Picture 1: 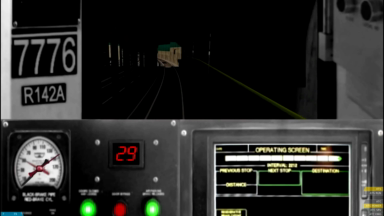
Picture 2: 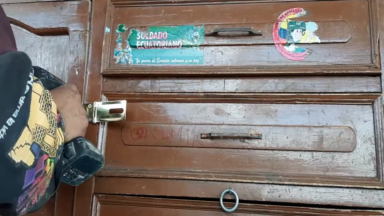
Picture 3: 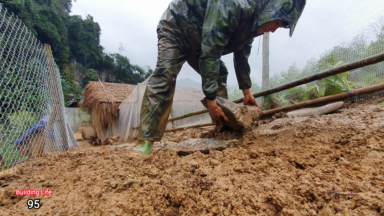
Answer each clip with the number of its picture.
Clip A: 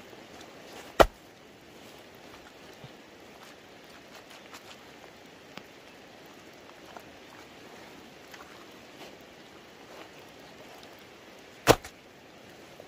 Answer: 3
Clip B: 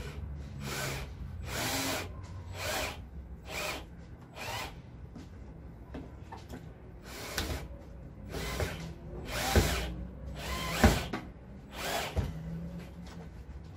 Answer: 2